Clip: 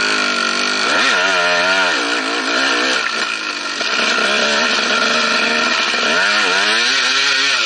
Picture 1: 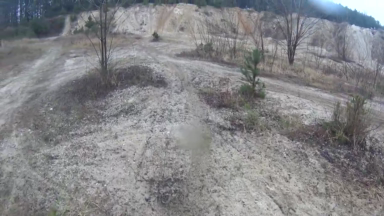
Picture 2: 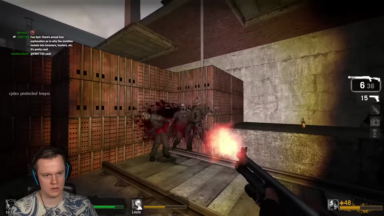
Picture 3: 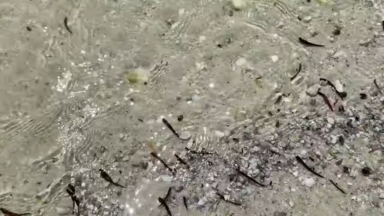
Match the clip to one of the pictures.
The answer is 1